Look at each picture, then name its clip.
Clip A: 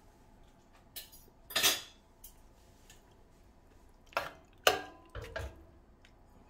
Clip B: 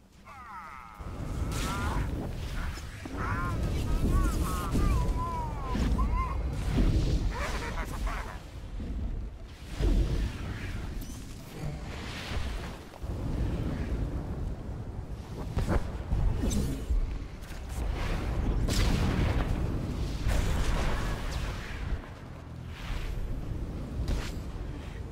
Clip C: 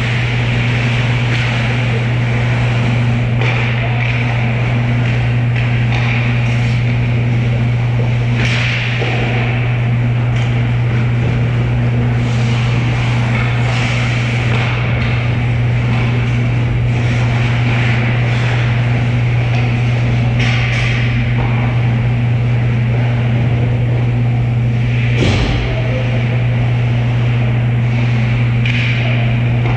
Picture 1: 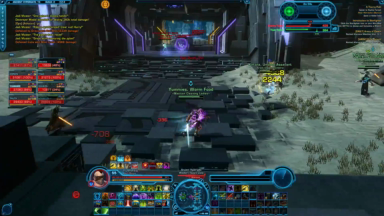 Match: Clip B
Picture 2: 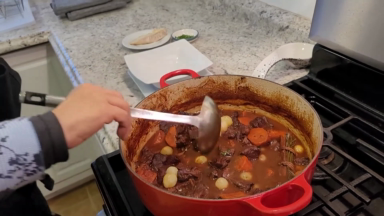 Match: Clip A